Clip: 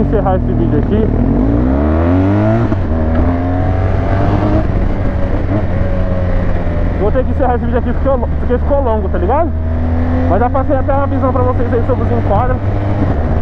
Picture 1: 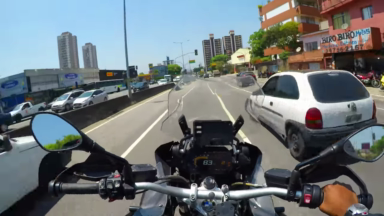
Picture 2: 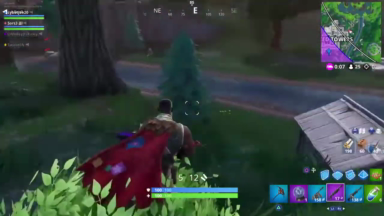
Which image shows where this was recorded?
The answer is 1